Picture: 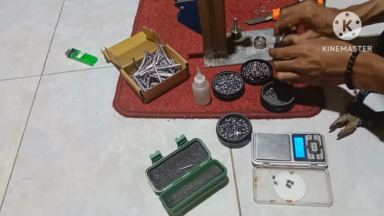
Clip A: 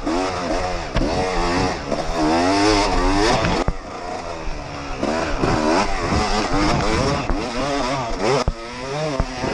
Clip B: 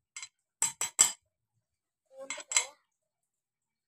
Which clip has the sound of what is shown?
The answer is B